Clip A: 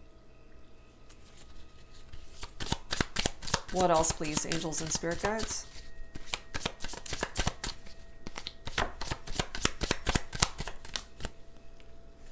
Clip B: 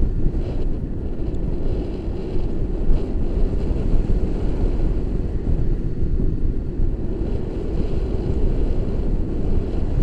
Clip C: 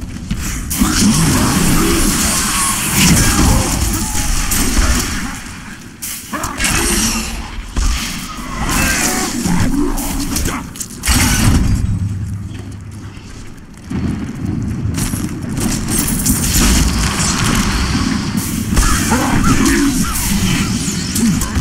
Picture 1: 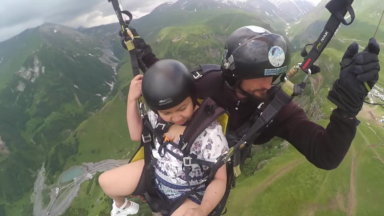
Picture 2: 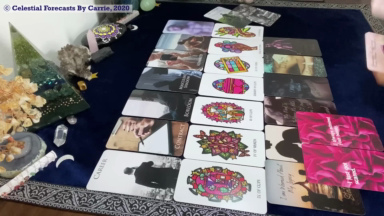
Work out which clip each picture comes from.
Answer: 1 B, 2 A